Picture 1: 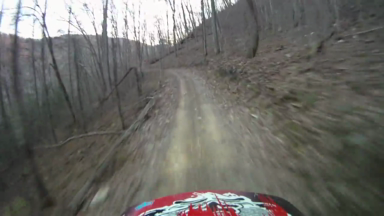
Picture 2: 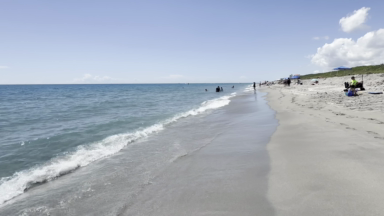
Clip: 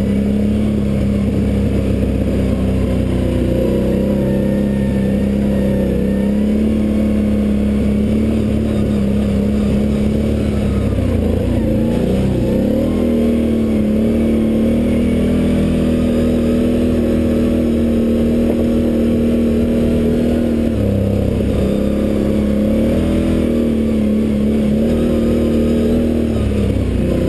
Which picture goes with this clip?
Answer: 1